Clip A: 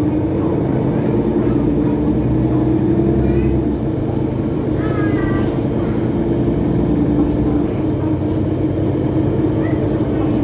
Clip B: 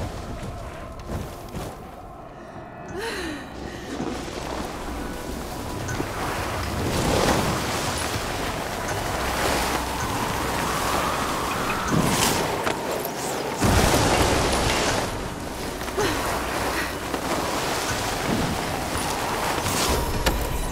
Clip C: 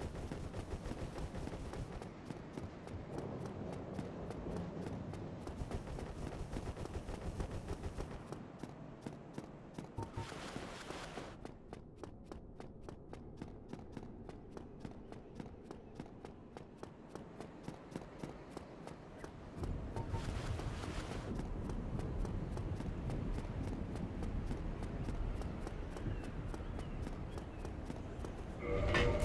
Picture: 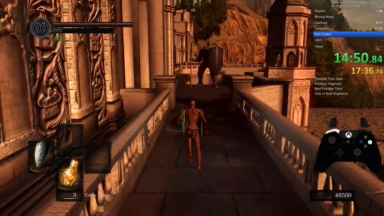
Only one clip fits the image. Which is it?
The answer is C